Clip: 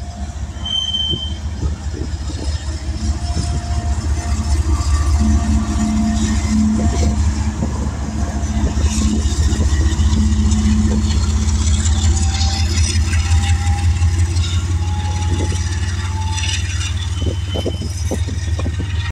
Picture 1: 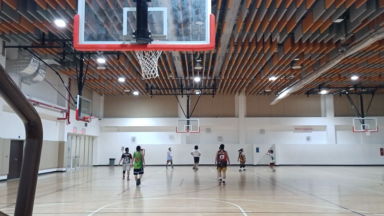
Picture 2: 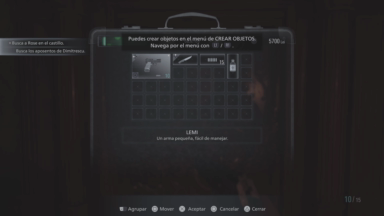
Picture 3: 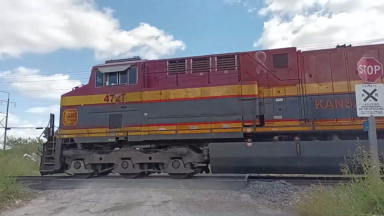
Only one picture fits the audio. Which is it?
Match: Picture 3